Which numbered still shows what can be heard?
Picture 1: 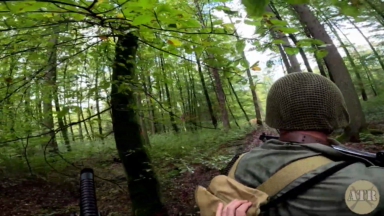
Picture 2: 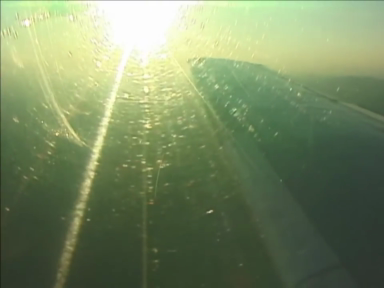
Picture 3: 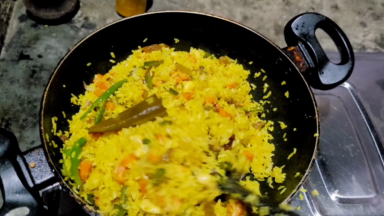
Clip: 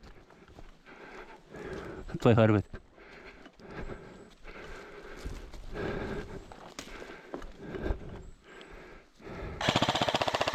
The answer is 1